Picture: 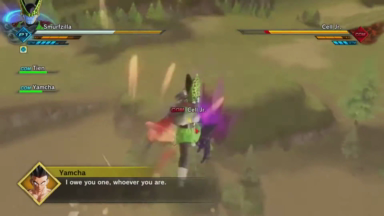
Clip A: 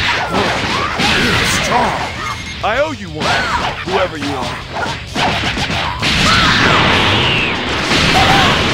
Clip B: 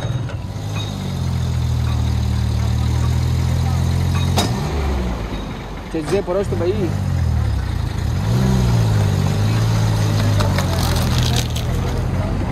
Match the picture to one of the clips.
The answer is A